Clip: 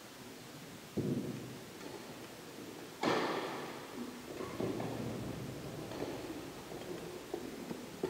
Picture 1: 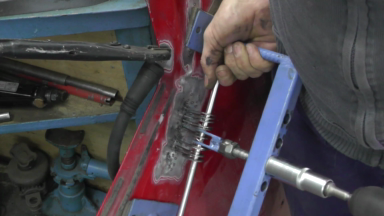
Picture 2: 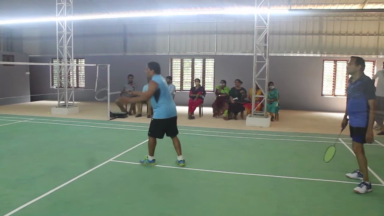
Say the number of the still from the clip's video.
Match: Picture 2